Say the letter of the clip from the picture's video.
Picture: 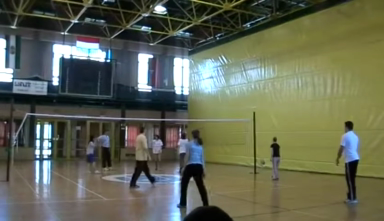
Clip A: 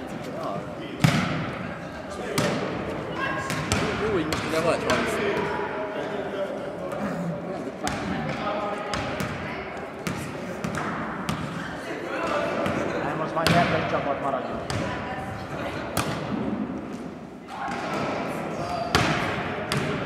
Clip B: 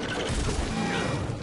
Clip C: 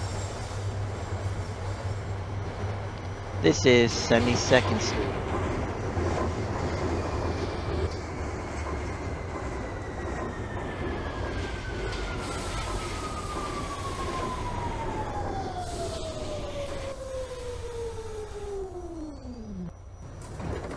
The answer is A